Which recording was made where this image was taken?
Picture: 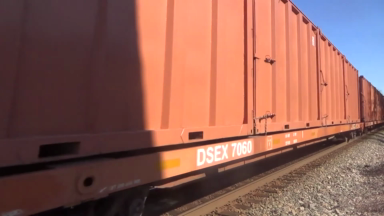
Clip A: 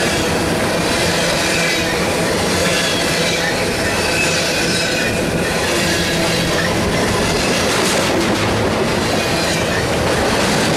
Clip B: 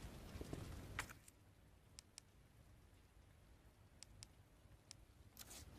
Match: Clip A